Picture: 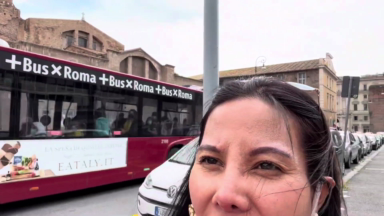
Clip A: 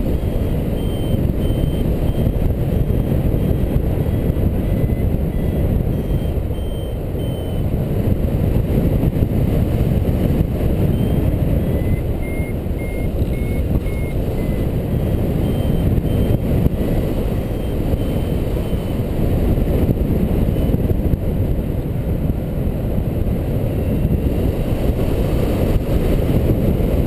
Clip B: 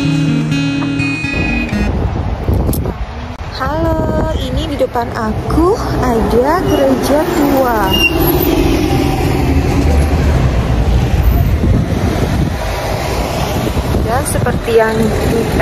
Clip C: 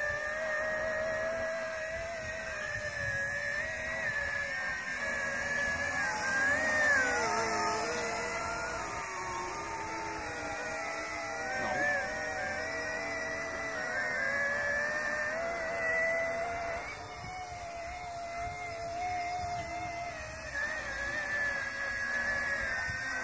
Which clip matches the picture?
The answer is B